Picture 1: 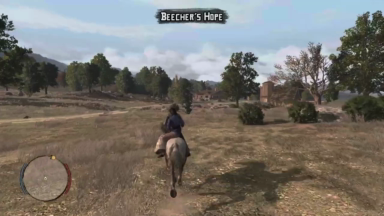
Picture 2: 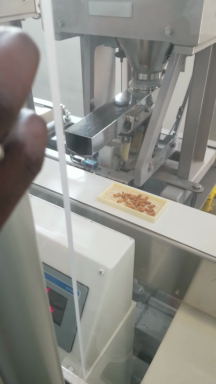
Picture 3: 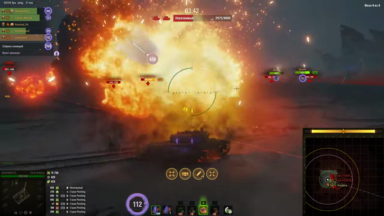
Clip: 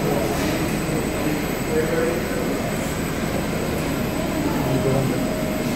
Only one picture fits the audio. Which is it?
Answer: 2